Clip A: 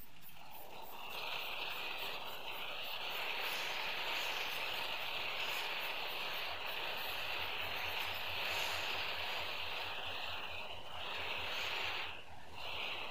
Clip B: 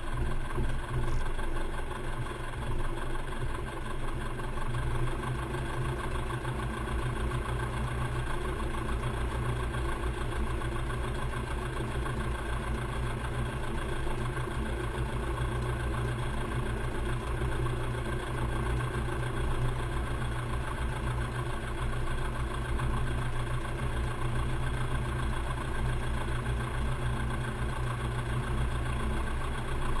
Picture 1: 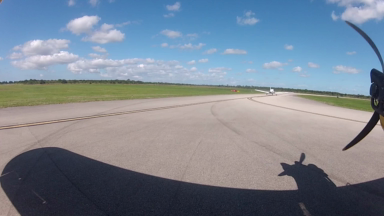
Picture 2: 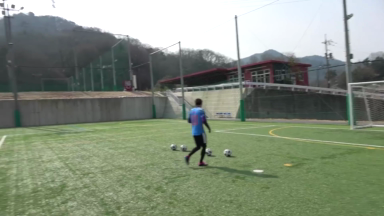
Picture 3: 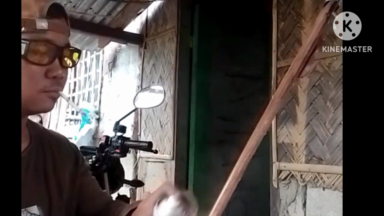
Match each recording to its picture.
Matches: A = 3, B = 1